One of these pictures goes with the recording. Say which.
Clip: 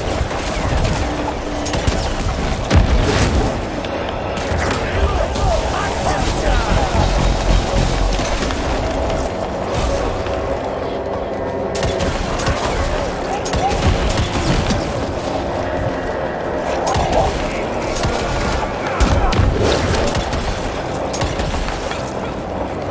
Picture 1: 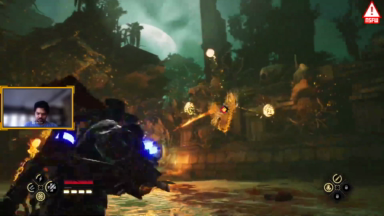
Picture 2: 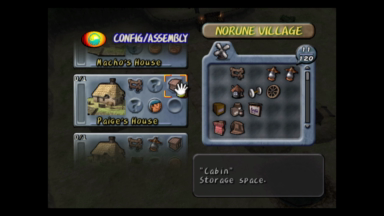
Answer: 1